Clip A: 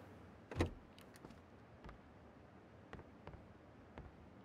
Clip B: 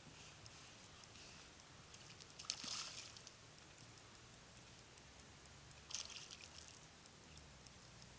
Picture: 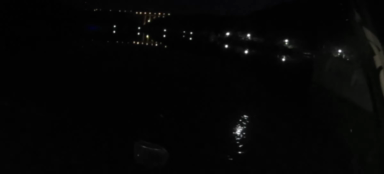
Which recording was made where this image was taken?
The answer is B